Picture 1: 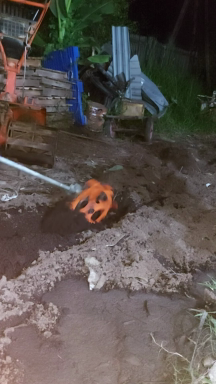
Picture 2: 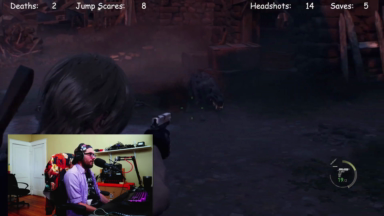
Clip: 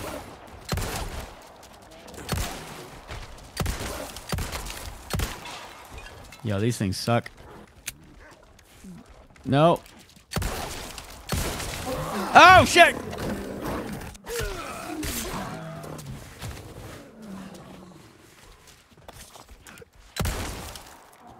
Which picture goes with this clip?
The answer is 2